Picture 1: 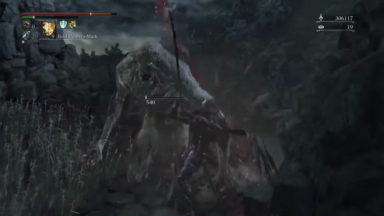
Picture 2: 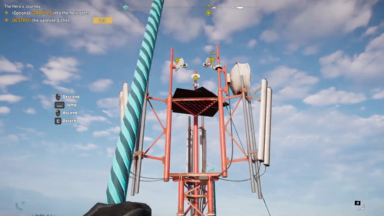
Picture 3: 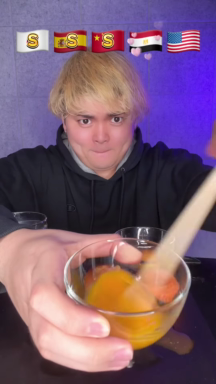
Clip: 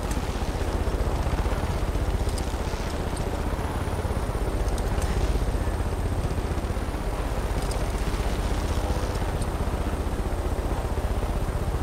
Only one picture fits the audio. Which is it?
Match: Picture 2